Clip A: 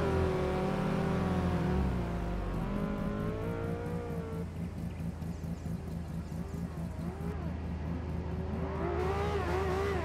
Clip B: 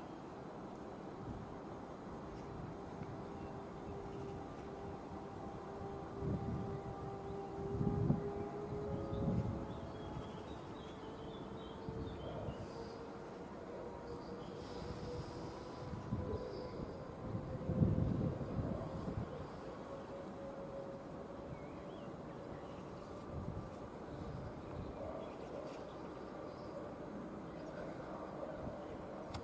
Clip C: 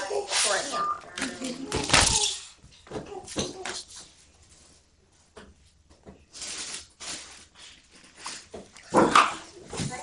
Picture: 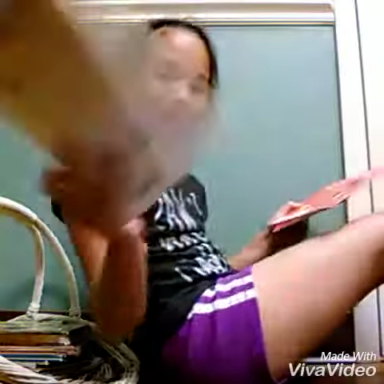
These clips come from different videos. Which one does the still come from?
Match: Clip C